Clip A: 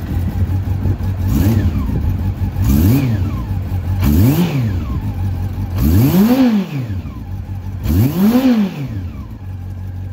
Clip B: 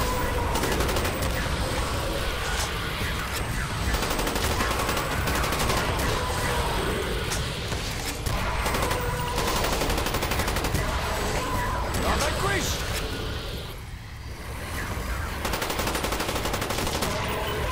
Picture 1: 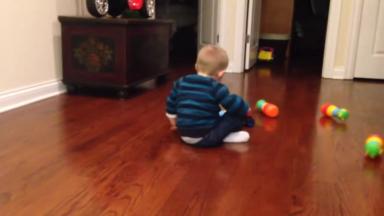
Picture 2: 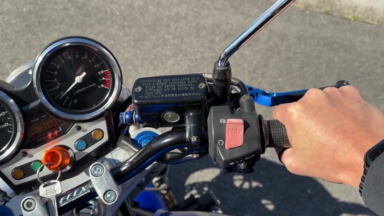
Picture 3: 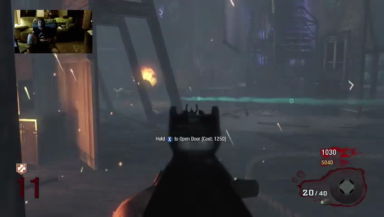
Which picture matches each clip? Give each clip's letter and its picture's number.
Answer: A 2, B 3